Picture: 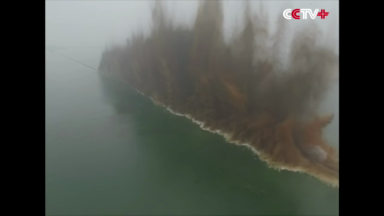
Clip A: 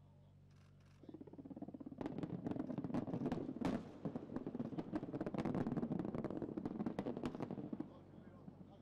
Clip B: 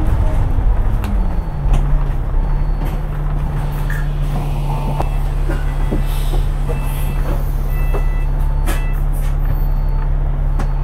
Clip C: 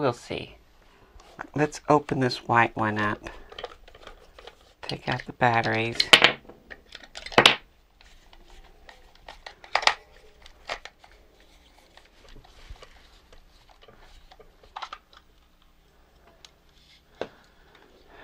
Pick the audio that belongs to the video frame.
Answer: A